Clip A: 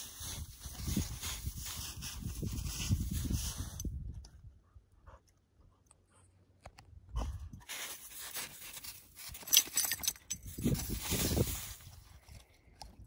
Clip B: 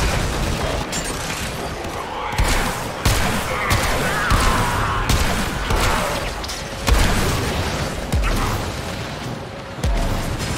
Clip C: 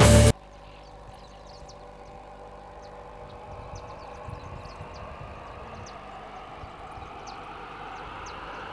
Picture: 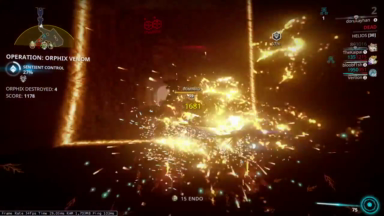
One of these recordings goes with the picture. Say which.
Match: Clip B